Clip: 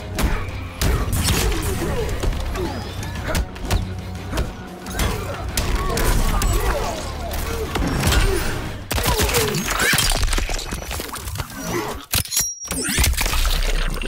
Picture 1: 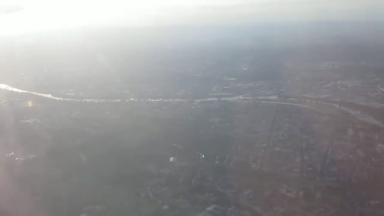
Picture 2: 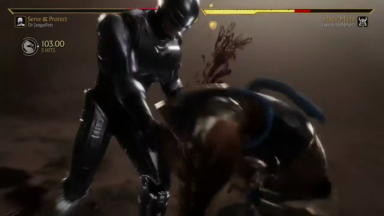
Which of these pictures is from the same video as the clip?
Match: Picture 2